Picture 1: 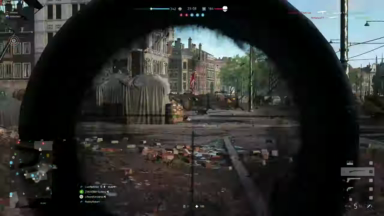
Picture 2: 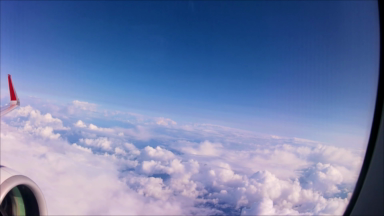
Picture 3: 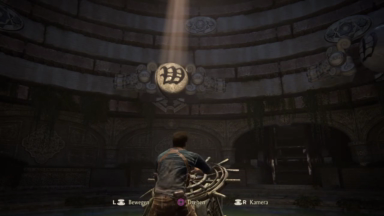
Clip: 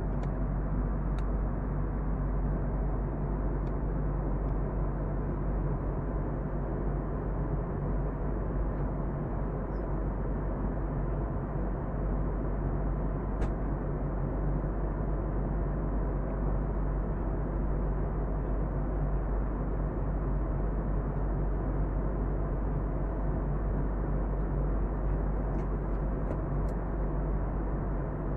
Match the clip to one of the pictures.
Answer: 2